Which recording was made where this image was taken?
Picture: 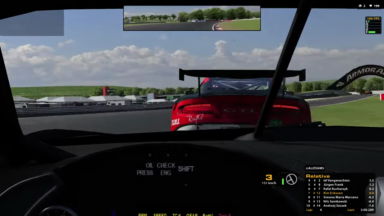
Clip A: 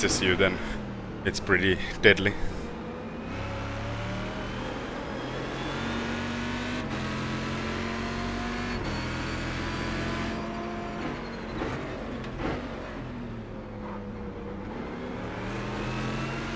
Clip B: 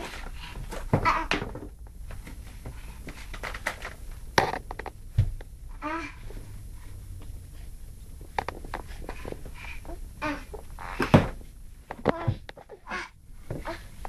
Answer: A